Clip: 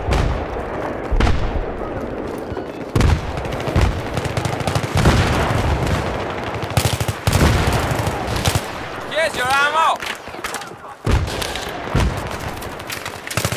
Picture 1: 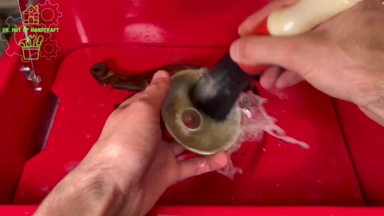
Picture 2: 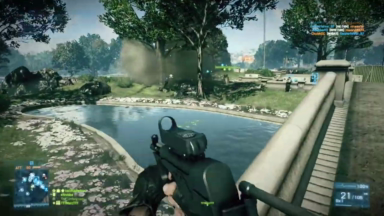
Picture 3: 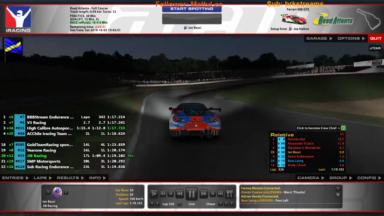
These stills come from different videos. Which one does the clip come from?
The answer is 2